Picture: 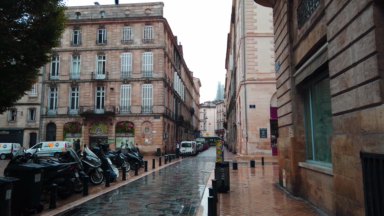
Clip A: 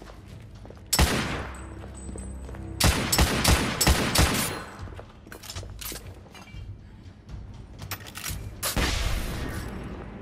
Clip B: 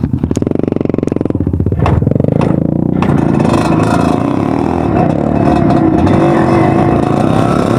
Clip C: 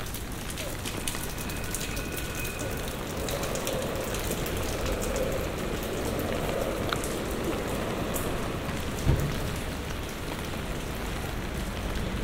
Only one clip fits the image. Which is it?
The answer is C